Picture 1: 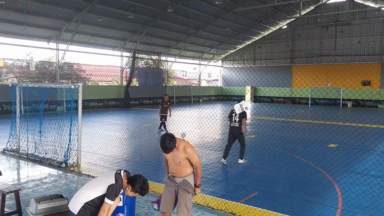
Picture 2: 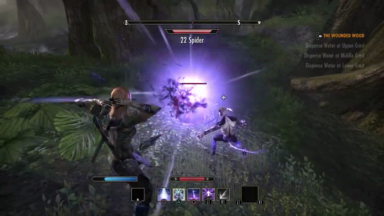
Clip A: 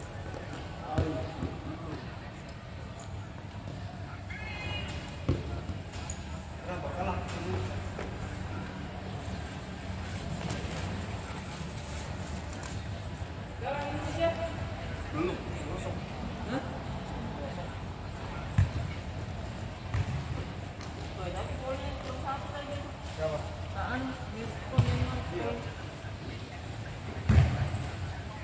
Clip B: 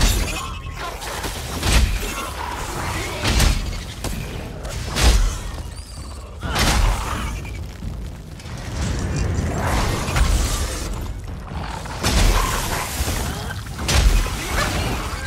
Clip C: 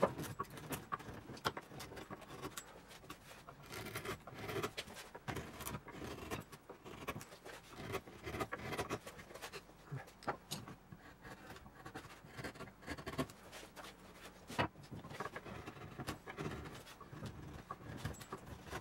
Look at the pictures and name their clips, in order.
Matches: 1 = A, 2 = B